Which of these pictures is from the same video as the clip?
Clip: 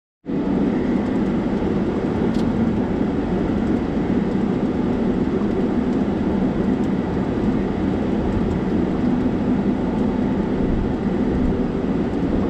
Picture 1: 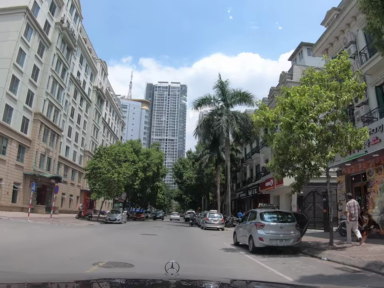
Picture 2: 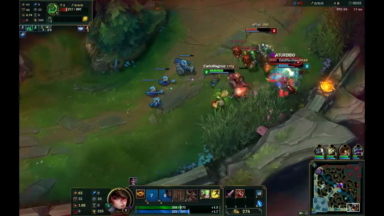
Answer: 1